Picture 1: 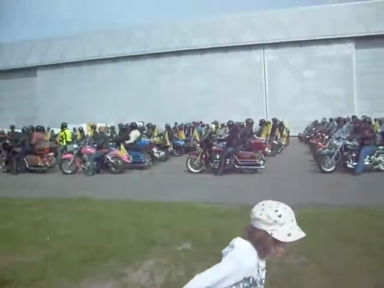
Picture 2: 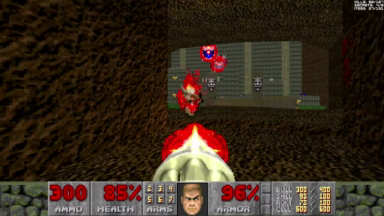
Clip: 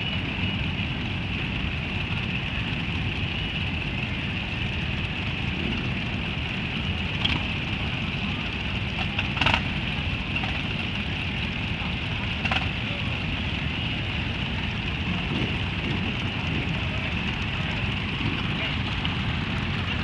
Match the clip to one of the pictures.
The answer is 1